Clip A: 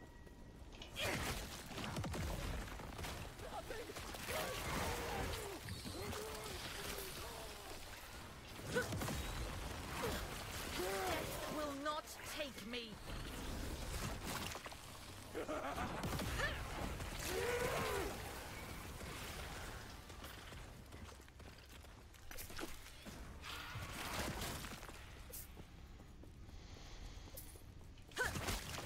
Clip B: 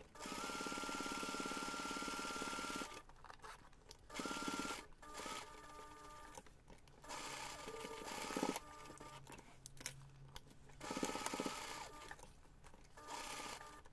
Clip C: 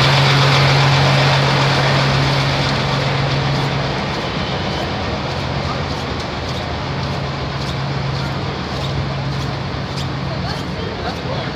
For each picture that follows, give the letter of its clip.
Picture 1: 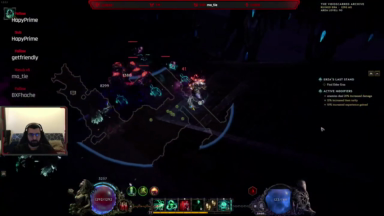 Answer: A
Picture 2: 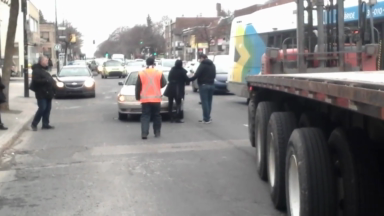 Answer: C